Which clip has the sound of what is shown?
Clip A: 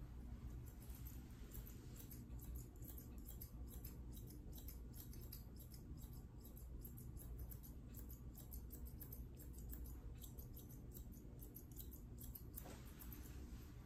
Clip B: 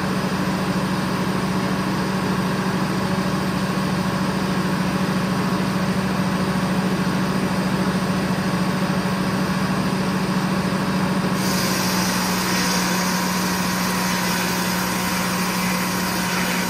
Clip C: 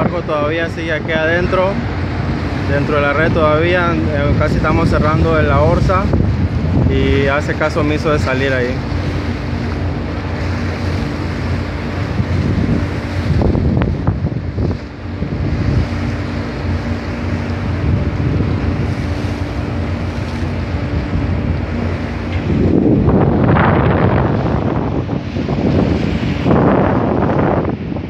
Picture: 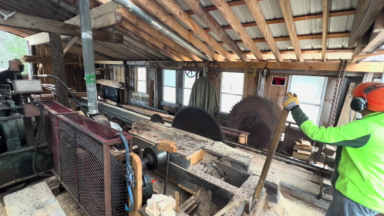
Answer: B